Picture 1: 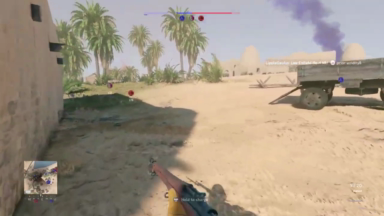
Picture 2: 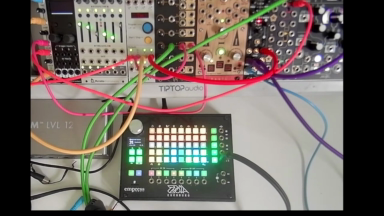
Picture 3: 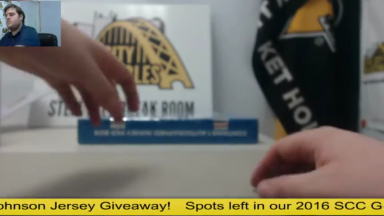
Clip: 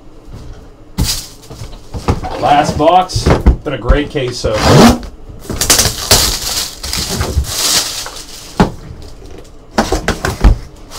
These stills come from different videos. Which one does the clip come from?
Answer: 3